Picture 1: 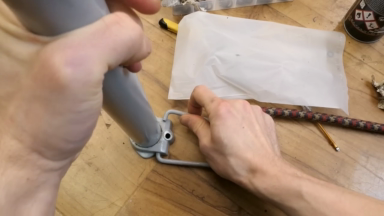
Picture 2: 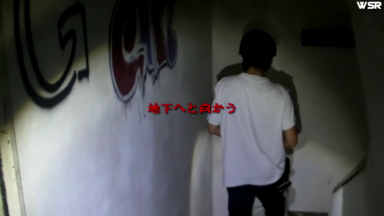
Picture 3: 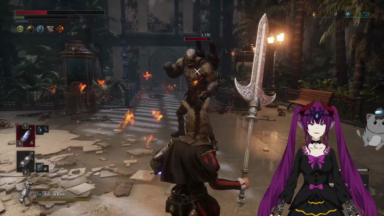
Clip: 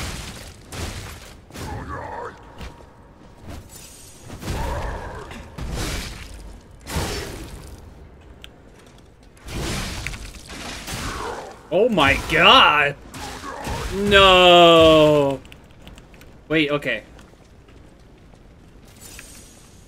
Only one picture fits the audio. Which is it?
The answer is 3